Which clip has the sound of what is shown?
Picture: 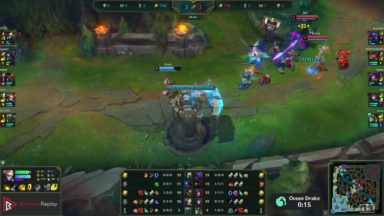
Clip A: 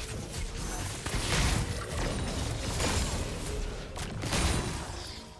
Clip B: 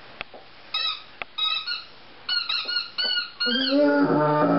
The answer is A